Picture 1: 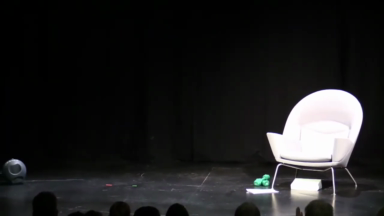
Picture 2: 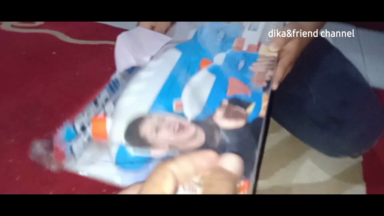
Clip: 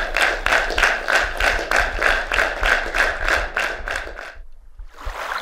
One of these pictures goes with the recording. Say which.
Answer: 1